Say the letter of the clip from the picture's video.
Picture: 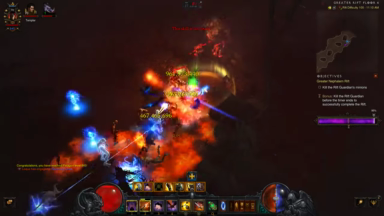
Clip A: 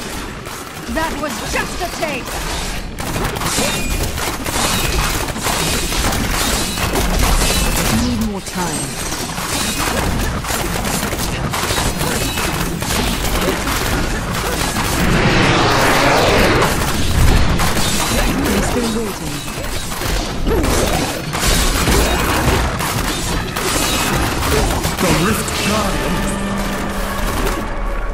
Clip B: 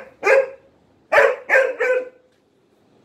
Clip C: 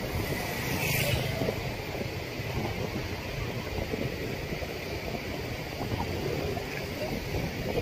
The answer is A